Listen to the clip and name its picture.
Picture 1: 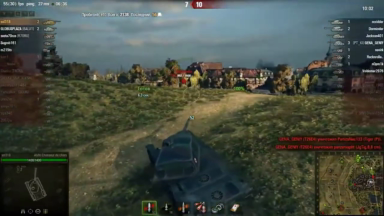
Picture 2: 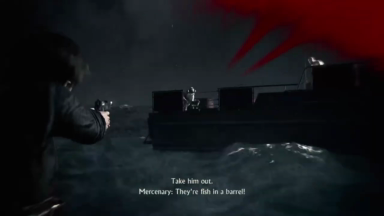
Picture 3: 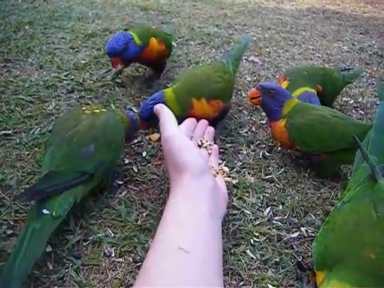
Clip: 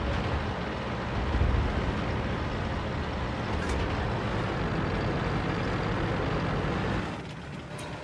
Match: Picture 1